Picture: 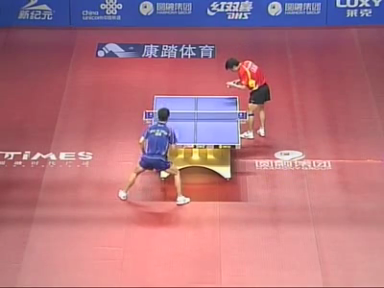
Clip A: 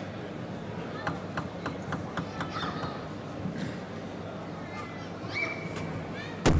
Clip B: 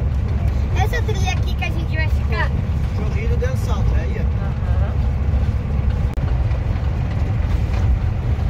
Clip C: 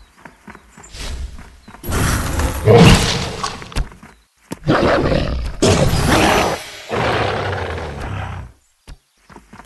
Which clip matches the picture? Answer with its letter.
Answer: A